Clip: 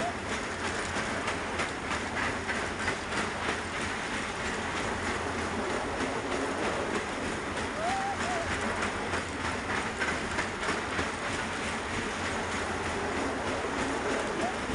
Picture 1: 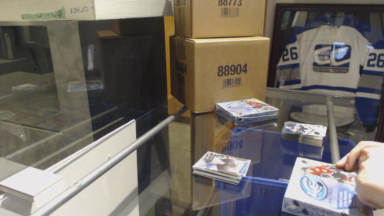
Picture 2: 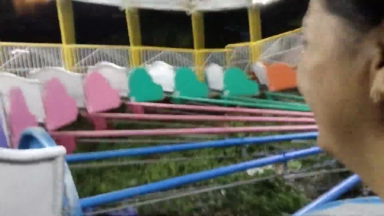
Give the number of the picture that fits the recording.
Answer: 2